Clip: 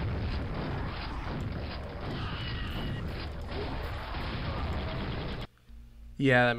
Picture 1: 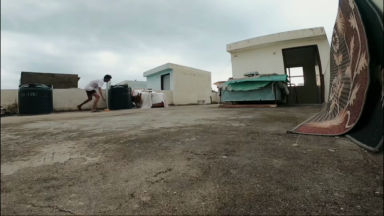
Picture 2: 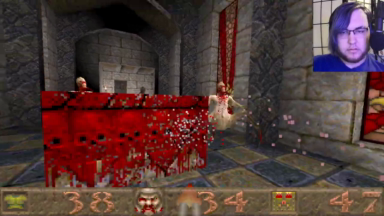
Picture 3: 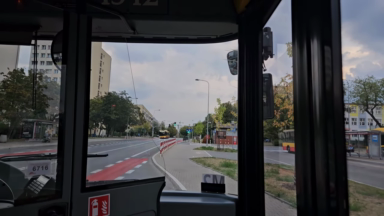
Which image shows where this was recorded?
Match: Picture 2